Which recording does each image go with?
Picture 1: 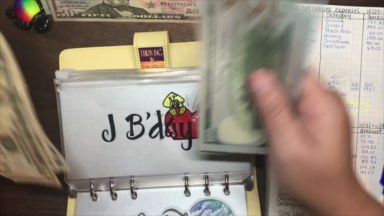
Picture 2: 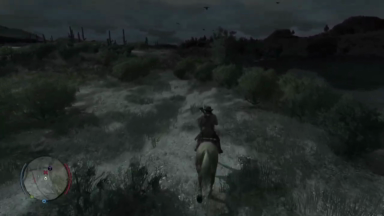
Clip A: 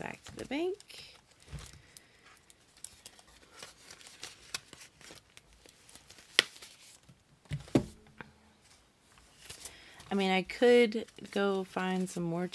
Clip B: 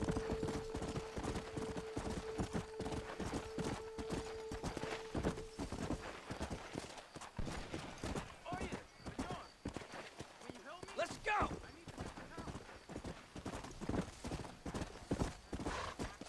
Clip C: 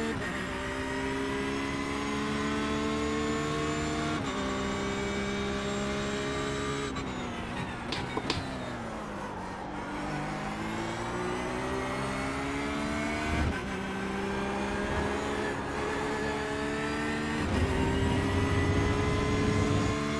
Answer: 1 A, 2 B